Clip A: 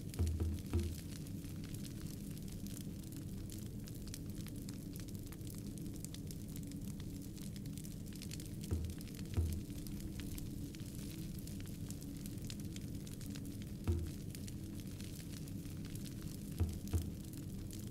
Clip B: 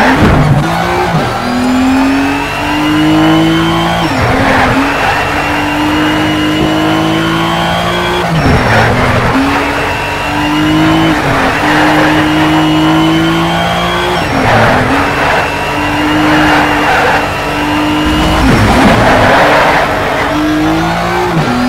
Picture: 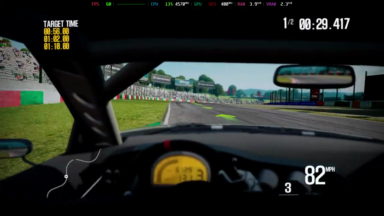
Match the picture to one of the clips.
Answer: B